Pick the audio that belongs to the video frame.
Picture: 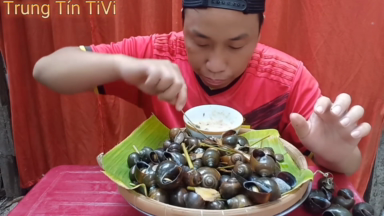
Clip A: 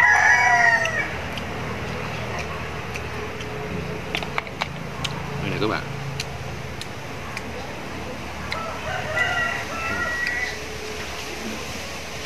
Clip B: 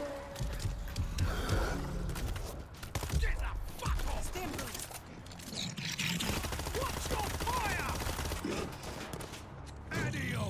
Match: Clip A